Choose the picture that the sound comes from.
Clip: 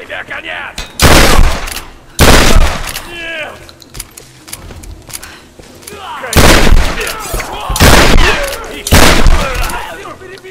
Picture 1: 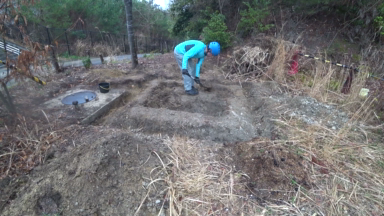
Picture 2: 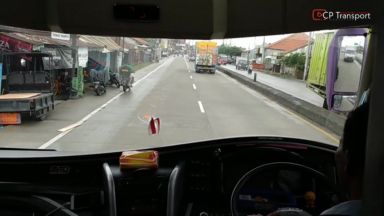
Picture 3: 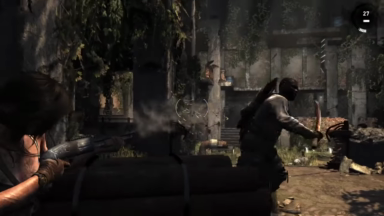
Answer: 3